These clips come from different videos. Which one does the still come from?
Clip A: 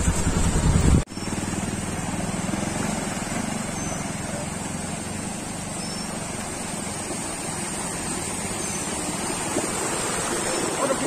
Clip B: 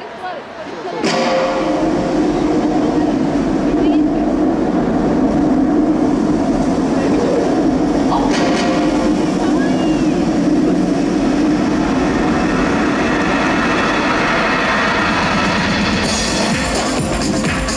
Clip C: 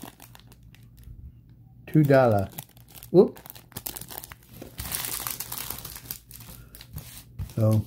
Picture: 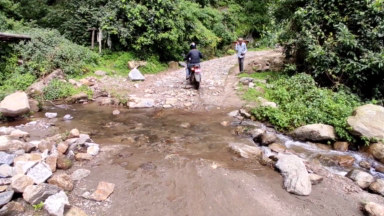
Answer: A